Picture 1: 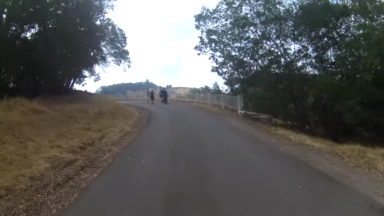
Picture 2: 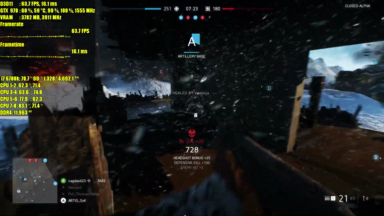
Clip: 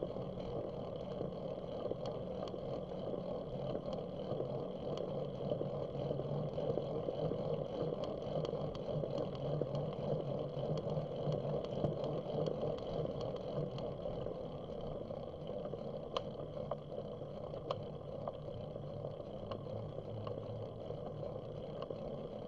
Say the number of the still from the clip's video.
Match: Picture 1